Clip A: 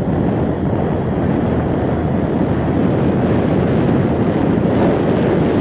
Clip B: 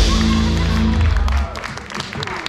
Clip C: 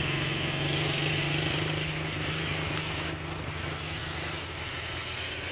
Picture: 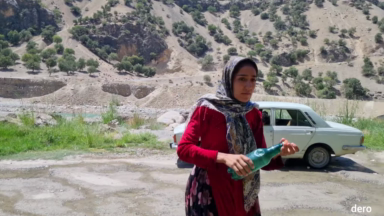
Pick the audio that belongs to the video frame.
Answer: C